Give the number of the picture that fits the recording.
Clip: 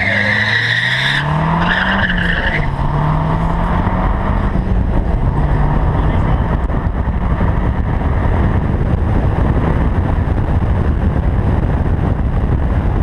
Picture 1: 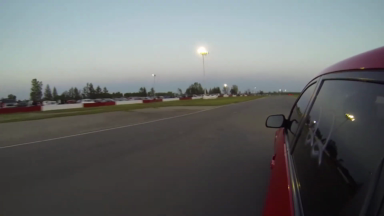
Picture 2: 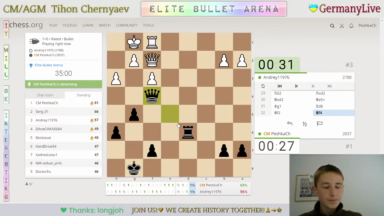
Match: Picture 1